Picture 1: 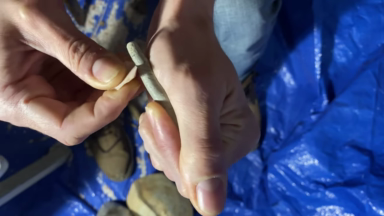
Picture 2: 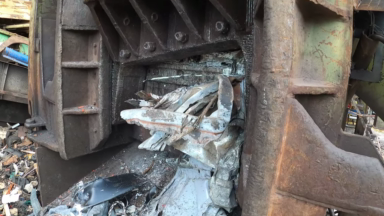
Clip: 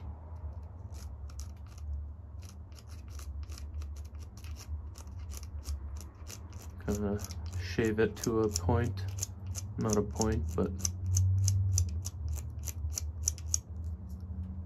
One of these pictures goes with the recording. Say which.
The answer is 1